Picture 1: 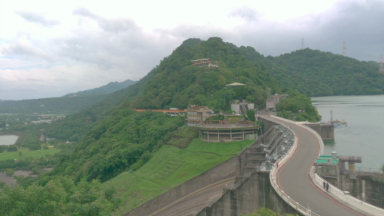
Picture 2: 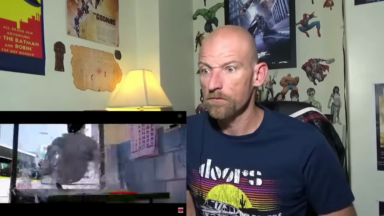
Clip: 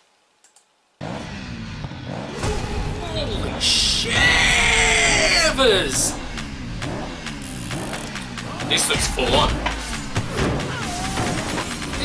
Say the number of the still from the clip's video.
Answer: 2